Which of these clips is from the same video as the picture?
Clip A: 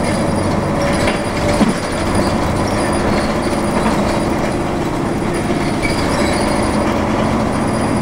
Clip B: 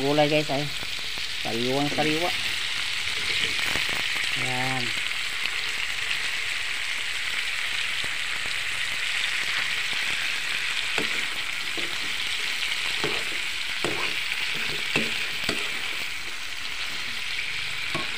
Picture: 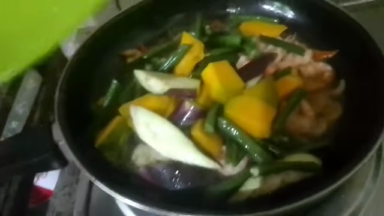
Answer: B